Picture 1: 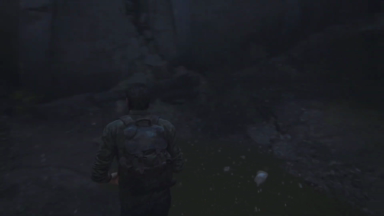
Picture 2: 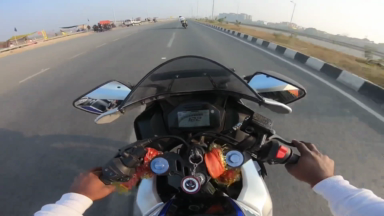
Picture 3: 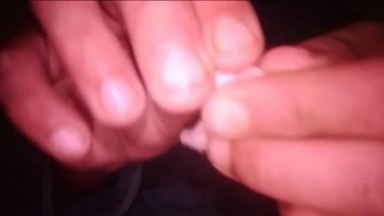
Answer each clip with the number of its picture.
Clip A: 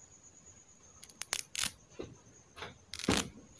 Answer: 3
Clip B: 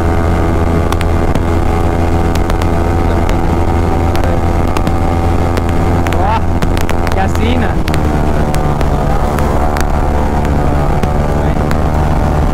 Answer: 2